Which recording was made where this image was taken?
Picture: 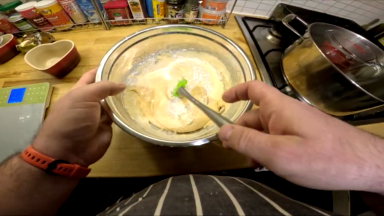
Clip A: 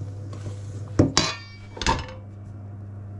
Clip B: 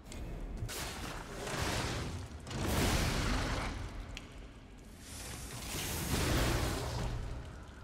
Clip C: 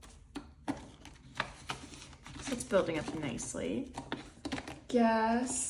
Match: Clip A